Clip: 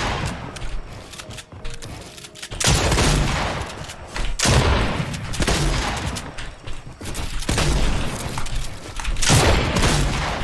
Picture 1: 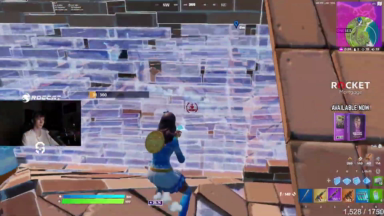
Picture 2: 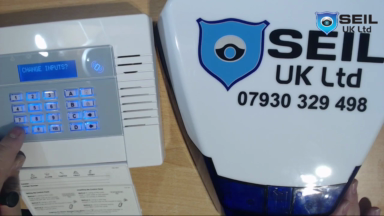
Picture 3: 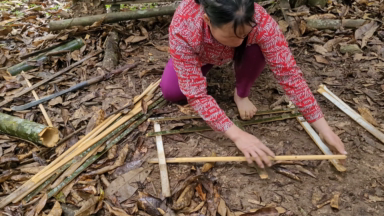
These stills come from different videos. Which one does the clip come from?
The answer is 1